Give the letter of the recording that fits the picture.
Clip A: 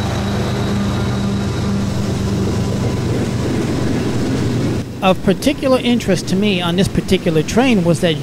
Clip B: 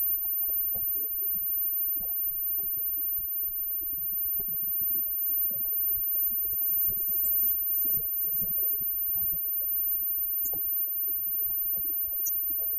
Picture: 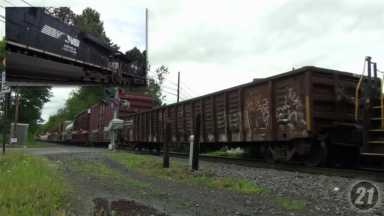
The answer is A